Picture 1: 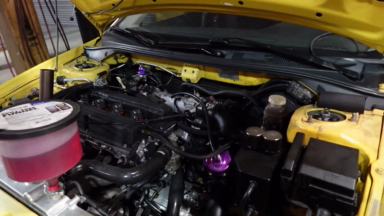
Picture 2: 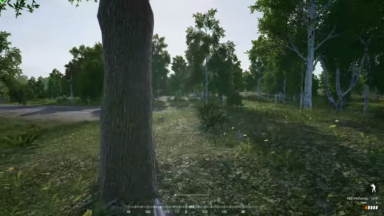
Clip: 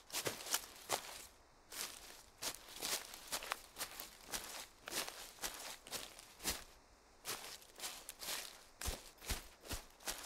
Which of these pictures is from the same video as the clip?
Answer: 2